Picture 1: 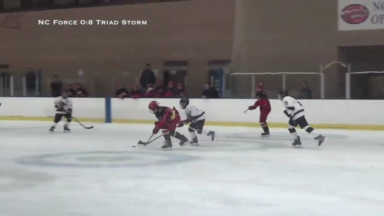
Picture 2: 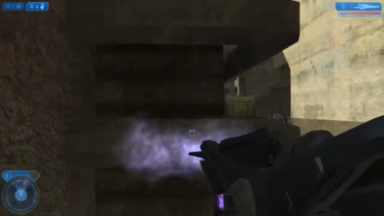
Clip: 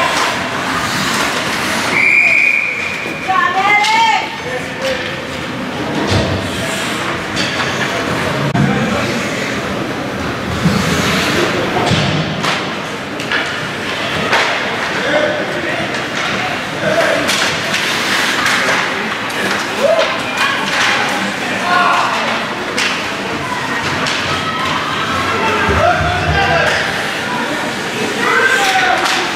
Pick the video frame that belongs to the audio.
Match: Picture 1